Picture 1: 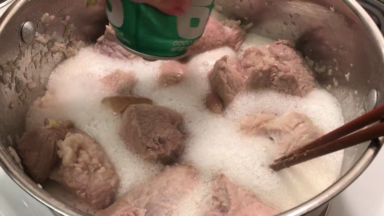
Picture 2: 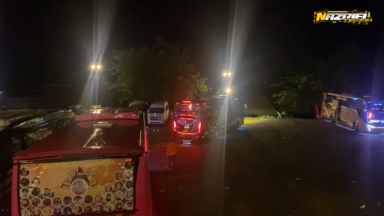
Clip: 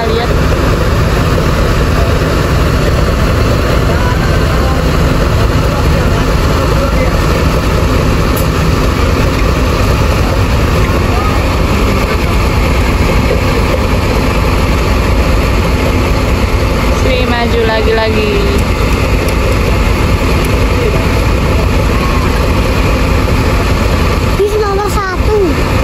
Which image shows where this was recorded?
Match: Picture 2